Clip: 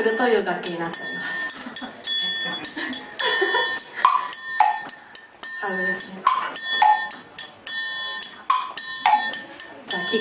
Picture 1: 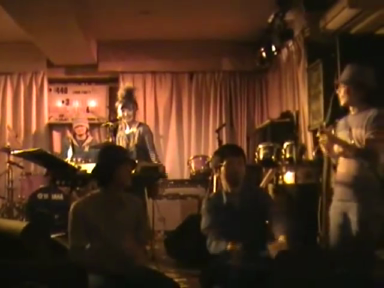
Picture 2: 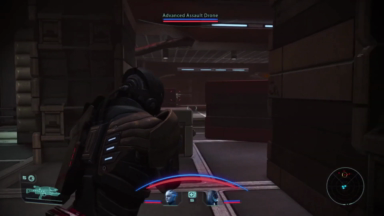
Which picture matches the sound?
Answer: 1